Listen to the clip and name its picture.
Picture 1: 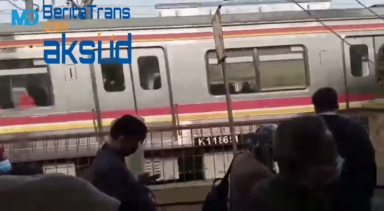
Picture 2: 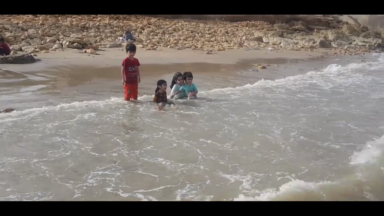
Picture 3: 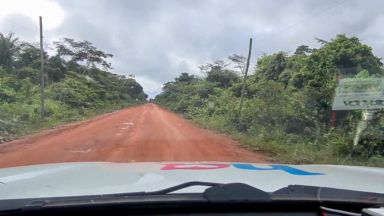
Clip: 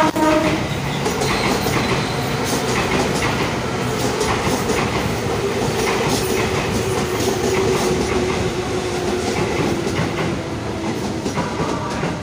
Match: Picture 1